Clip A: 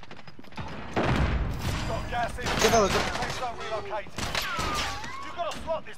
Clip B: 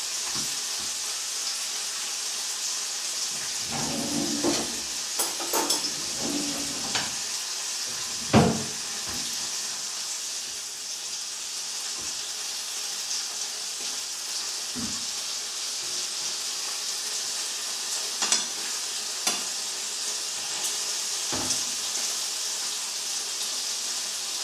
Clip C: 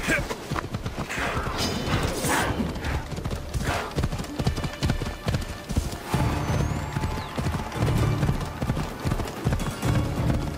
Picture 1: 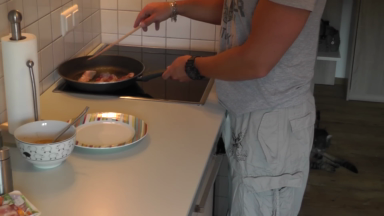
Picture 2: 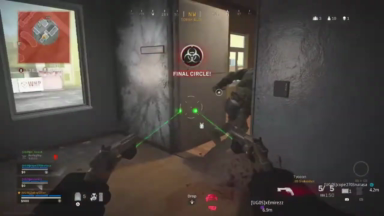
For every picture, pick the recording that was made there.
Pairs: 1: B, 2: A